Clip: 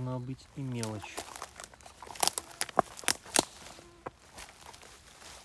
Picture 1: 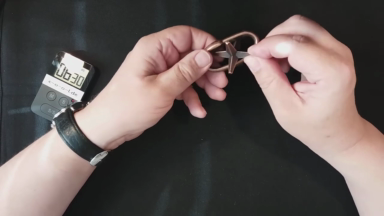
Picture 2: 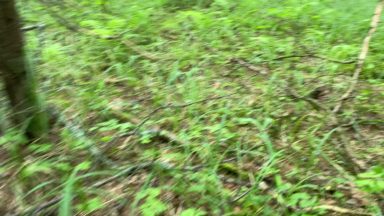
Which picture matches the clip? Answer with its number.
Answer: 2